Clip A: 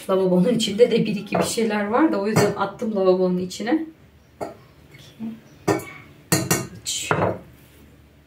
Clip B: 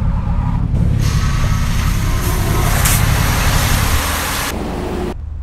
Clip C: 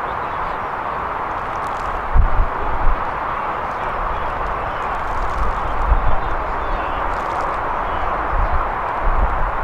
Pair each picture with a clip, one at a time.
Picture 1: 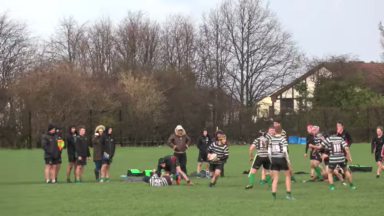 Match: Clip C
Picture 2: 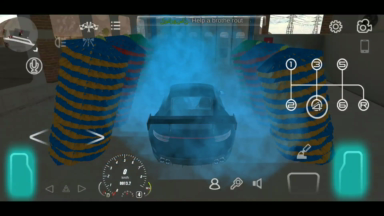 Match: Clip B